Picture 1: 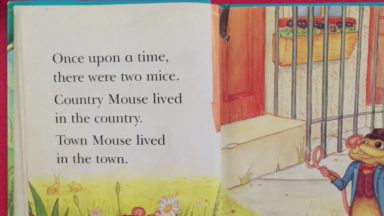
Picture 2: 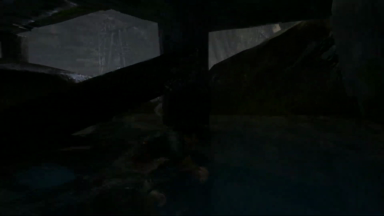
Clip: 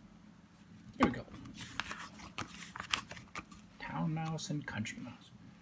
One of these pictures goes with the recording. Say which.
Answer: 1